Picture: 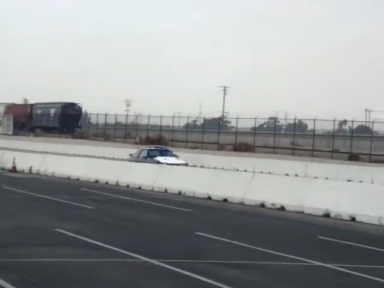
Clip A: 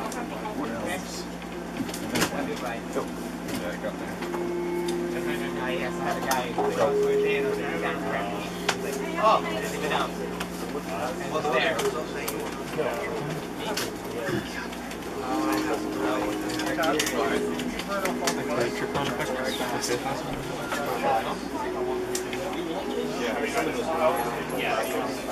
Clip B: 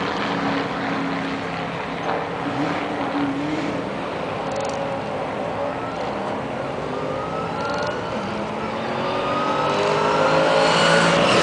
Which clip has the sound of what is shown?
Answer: B